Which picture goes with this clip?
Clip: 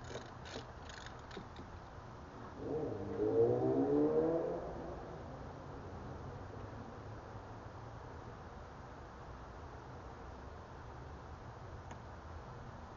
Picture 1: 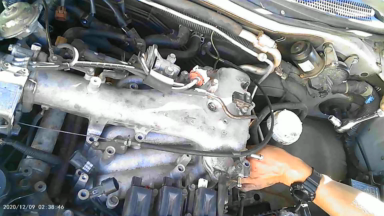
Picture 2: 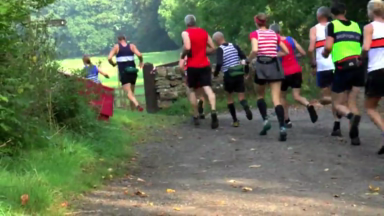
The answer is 1